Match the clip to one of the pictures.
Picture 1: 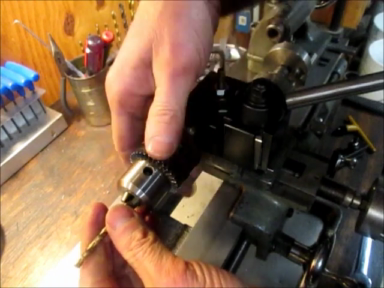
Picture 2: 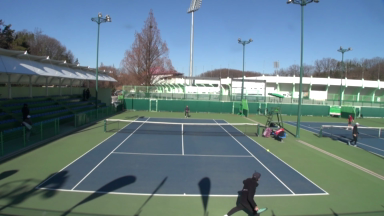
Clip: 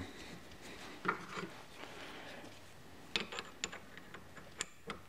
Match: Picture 1